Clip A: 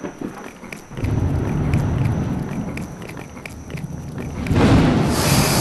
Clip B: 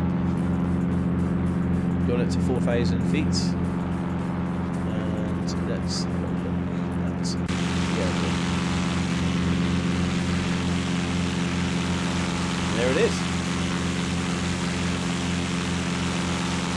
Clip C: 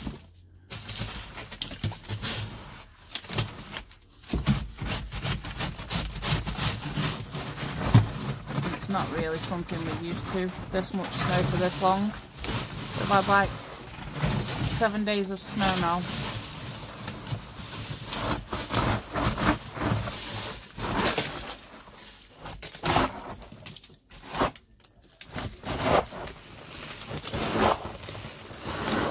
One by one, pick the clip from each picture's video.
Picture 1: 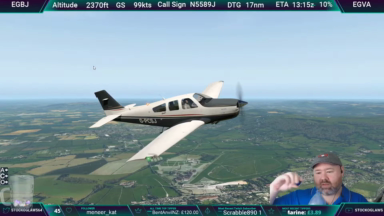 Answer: B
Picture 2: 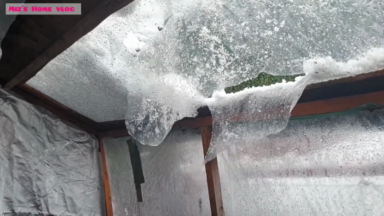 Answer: C